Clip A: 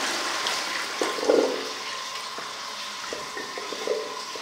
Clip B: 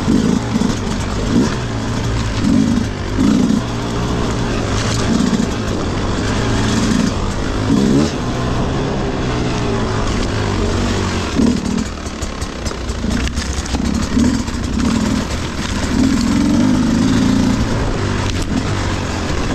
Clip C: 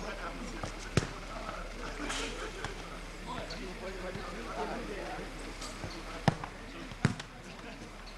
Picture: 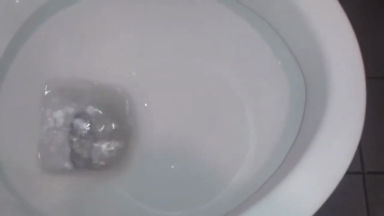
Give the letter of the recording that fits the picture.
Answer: A